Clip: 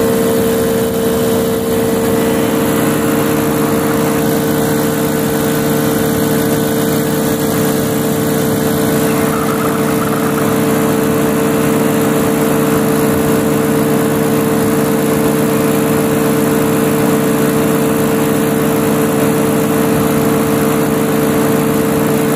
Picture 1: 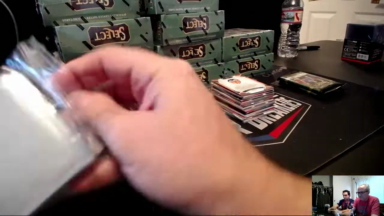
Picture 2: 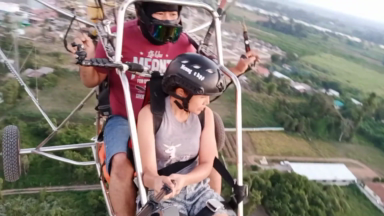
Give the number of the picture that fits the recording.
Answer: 2